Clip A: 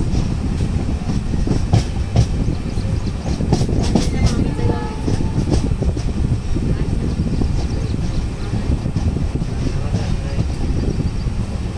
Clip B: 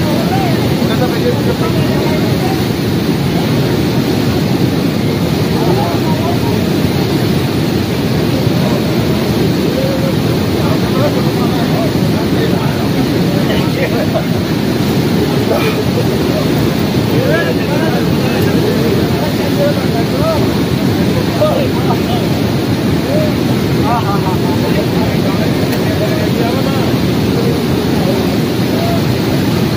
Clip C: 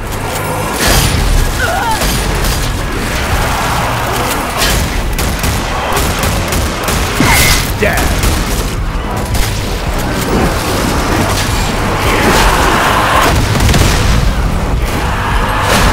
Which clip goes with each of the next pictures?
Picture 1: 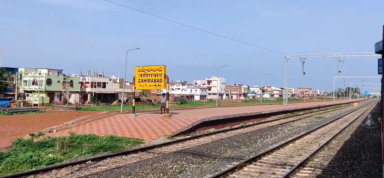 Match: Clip A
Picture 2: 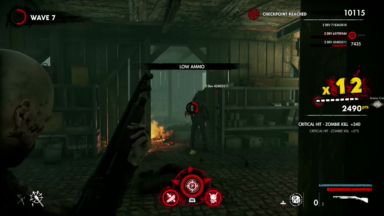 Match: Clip C